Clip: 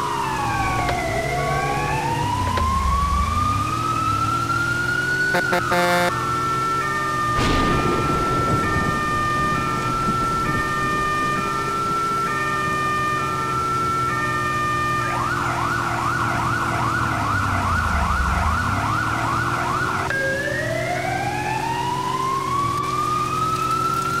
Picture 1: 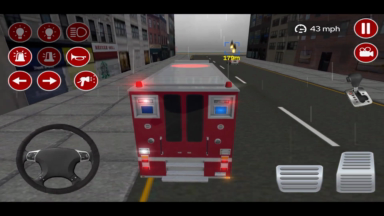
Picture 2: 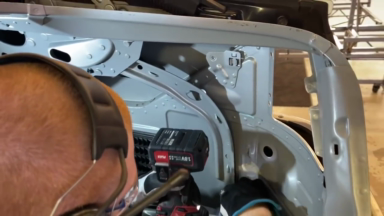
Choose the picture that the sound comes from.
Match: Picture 1